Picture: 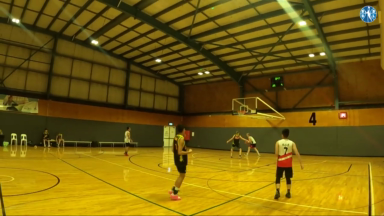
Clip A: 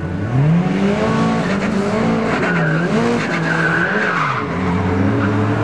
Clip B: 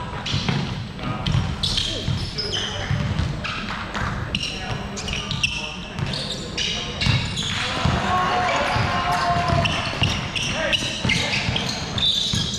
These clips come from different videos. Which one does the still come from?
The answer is B